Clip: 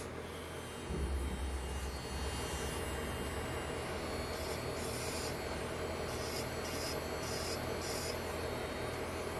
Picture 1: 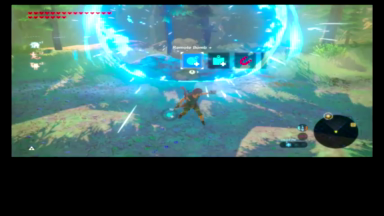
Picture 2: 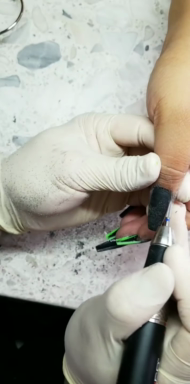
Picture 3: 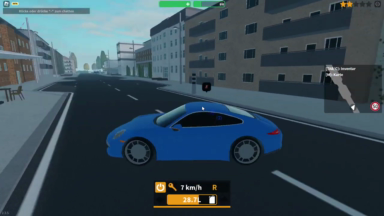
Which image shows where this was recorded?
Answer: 2